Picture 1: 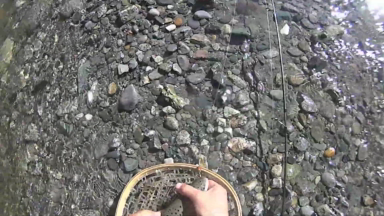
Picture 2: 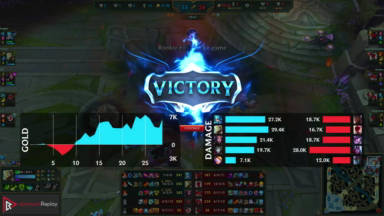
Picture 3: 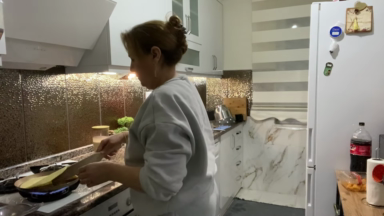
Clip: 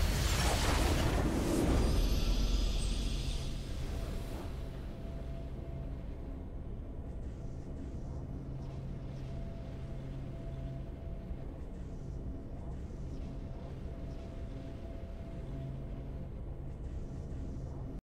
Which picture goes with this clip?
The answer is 2